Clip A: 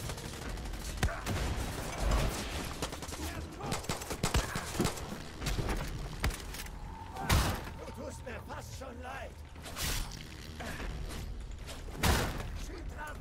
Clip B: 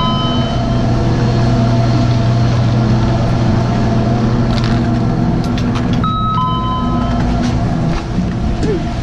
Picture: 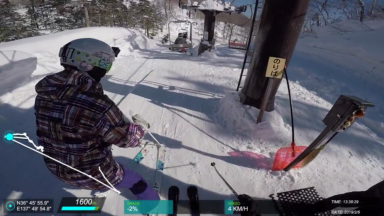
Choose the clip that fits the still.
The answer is B